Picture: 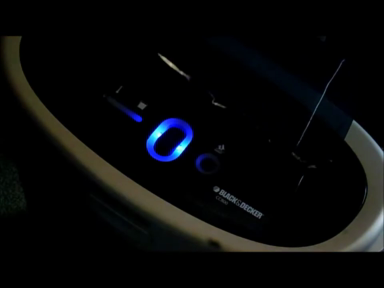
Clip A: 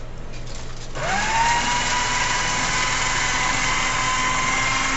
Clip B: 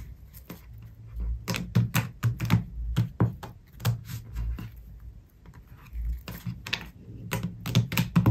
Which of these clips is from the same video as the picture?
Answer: A